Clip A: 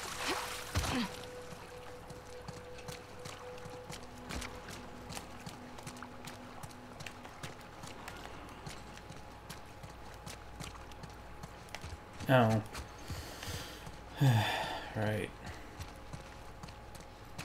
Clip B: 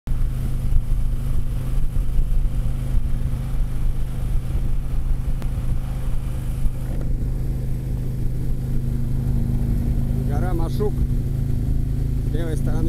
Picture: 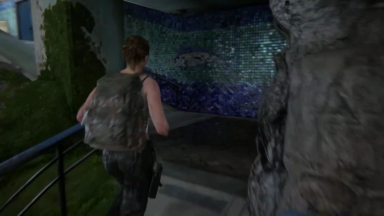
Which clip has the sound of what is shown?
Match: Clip A